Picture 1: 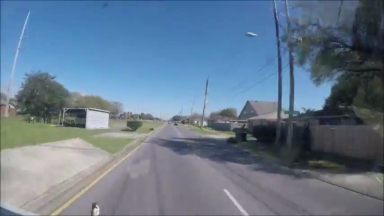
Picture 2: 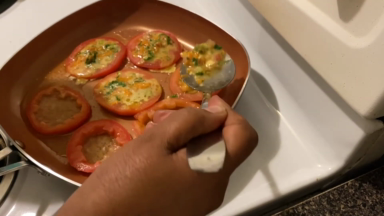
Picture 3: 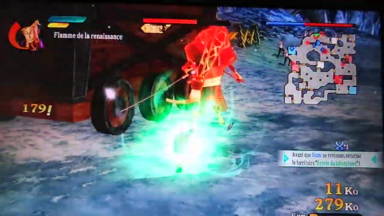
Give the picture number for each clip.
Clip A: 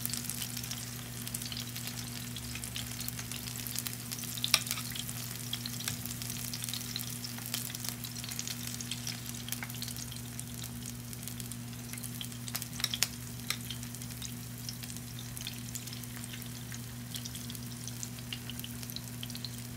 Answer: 2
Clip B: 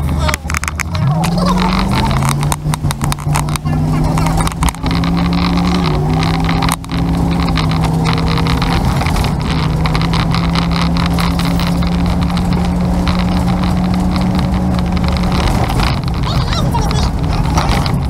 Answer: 1